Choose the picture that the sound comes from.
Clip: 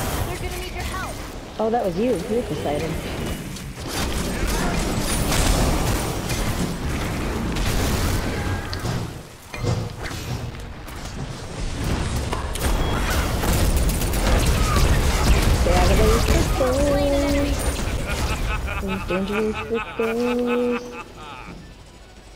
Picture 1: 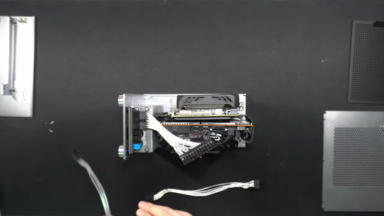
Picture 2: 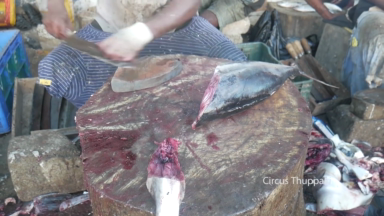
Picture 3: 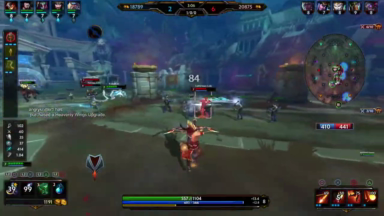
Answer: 3